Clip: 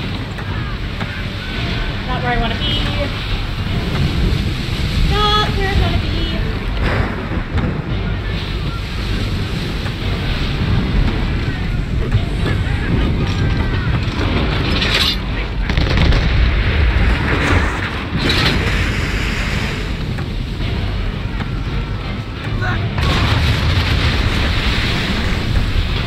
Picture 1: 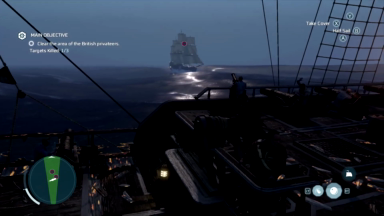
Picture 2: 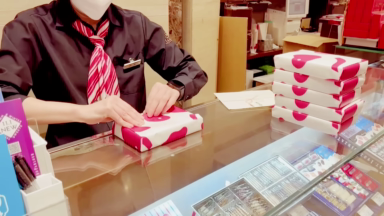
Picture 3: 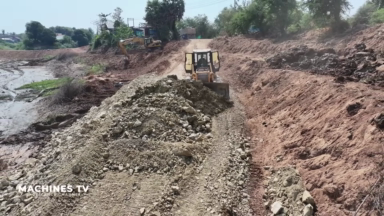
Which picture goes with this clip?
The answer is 1